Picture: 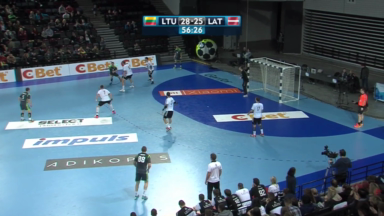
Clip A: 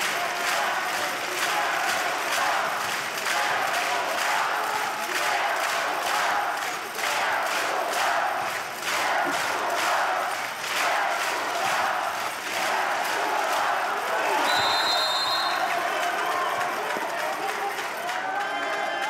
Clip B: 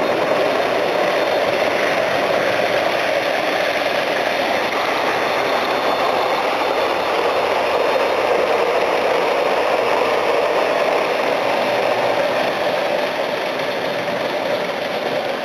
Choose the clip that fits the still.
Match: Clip A